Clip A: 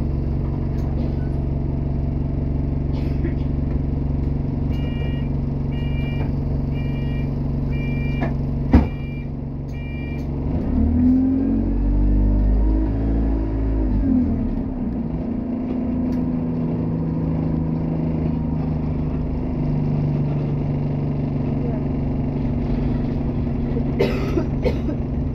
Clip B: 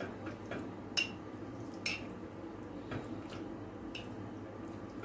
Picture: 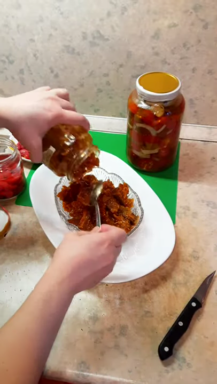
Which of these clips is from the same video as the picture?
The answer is B